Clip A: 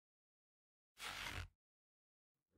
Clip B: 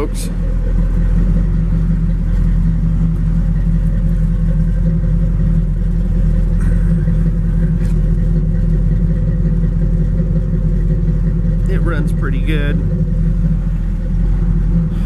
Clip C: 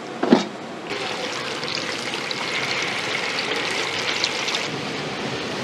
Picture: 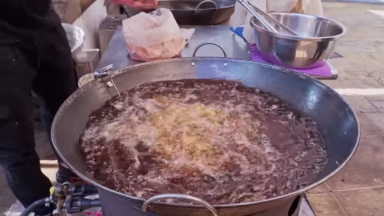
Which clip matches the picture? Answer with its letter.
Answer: C